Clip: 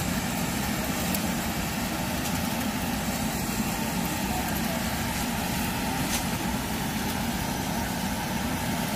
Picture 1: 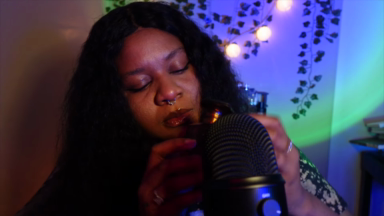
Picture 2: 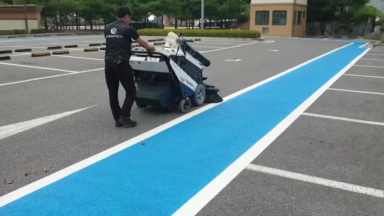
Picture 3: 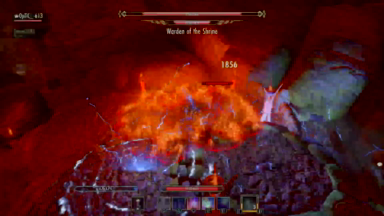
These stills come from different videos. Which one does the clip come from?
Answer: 2